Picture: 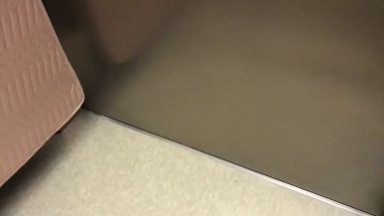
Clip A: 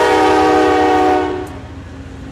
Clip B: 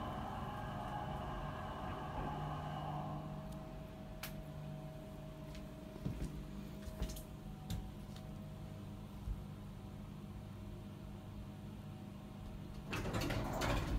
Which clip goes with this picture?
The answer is B